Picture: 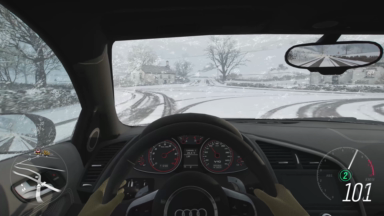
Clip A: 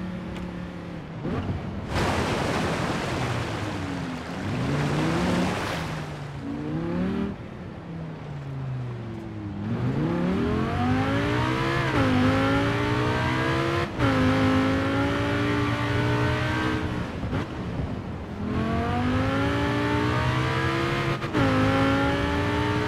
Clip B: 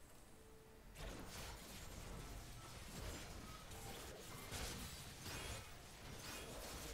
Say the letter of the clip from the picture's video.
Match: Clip A